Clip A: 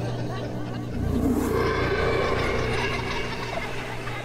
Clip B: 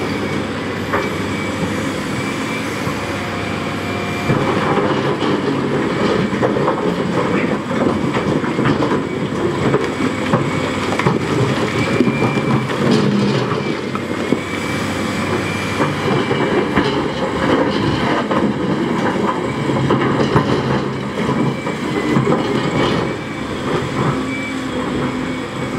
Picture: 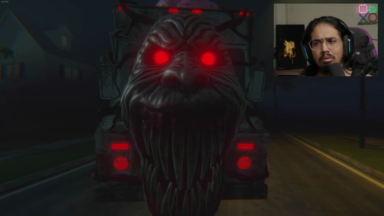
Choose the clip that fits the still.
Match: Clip A